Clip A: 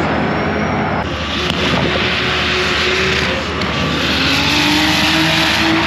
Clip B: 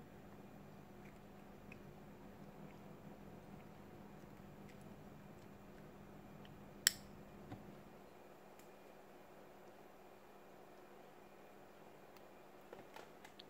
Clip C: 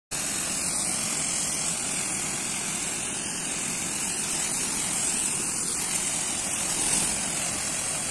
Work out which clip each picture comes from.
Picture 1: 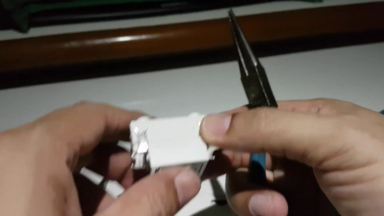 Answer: B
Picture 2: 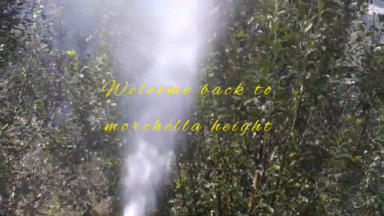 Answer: C